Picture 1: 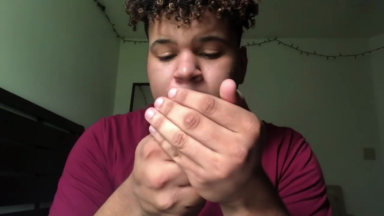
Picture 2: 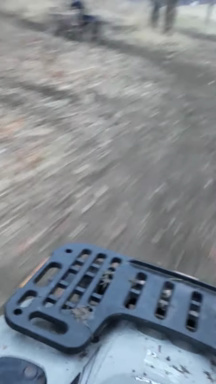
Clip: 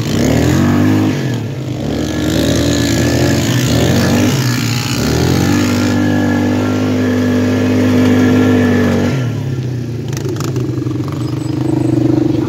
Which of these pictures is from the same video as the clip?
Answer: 2